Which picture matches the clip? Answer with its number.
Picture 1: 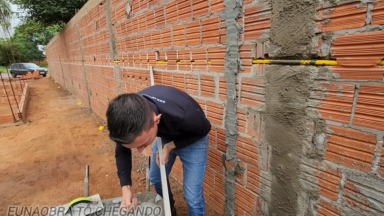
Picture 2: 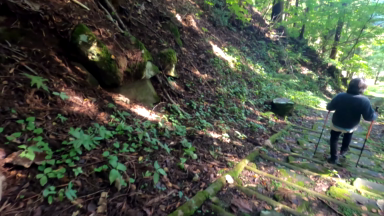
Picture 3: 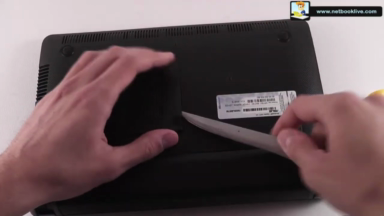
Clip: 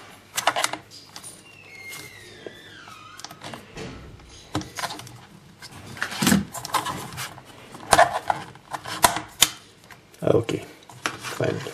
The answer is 3